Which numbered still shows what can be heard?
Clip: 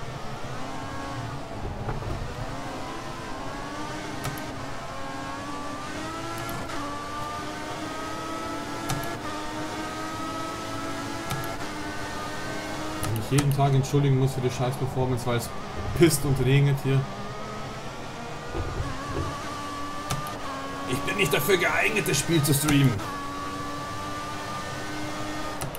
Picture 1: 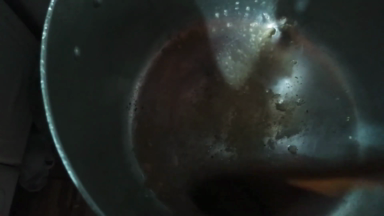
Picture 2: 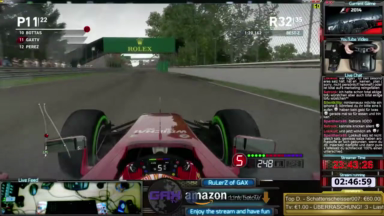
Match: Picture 2